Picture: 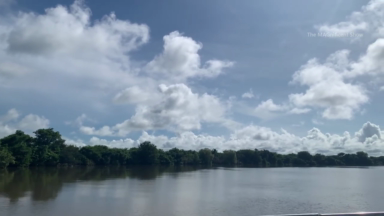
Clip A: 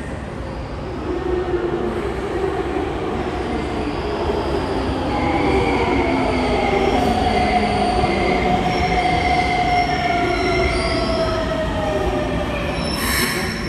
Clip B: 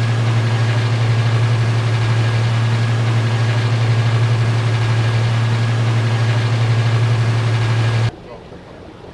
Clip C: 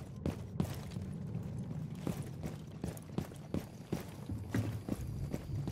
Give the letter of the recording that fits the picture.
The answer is B